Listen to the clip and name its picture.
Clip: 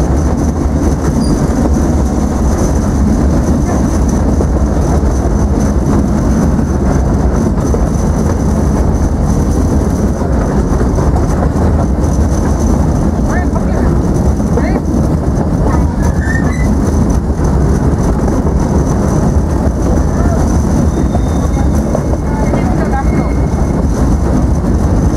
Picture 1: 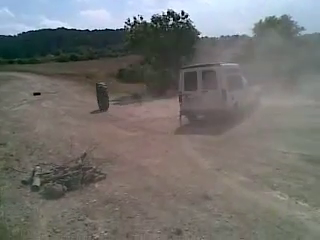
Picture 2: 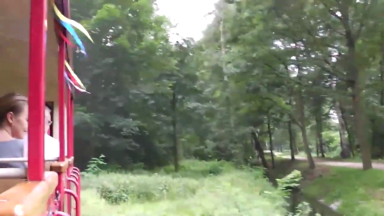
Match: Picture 2